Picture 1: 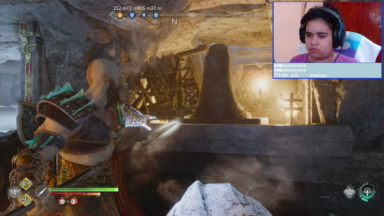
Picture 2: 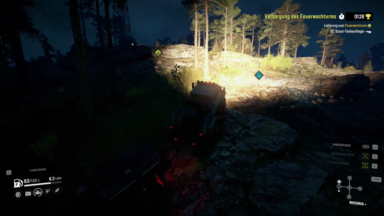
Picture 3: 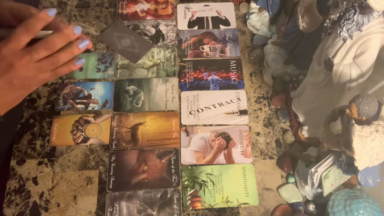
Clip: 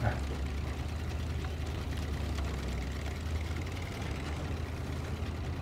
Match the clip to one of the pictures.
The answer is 2